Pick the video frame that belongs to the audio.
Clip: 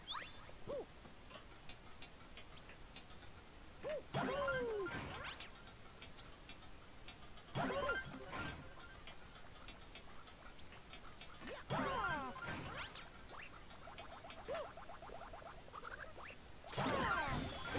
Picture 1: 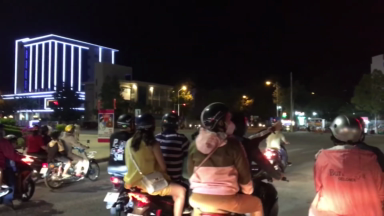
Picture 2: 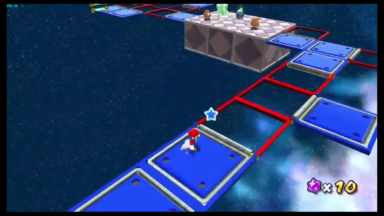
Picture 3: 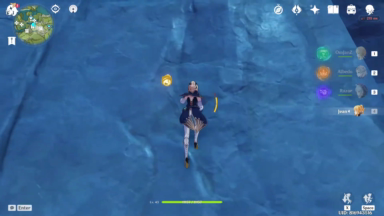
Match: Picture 2